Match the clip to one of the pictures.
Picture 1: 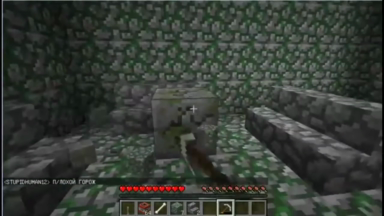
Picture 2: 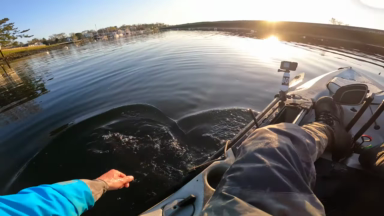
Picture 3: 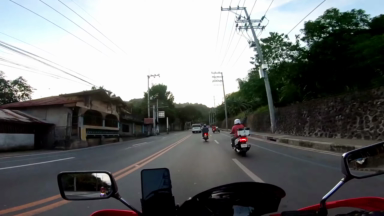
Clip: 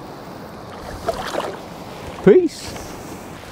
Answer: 2